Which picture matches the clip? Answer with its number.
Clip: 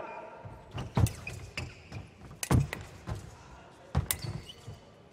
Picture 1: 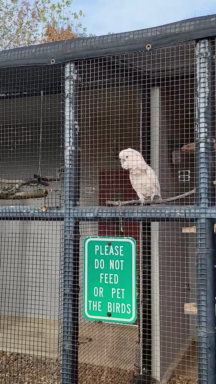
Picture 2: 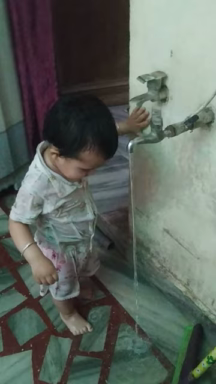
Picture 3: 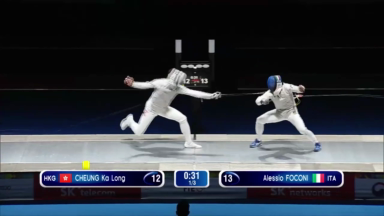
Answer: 3